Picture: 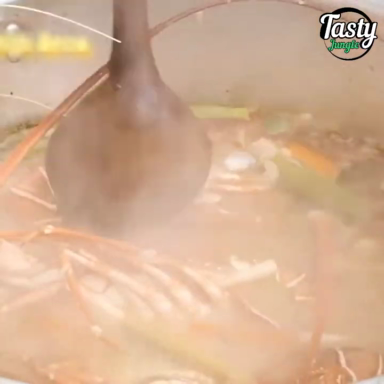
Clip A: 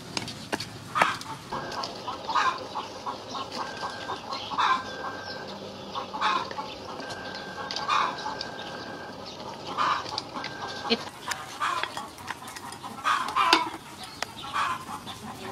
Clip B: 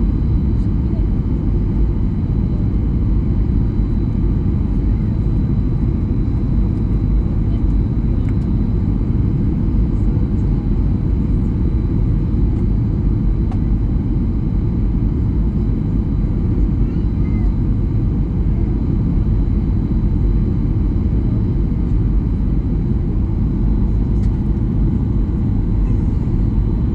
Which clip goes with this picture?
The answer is A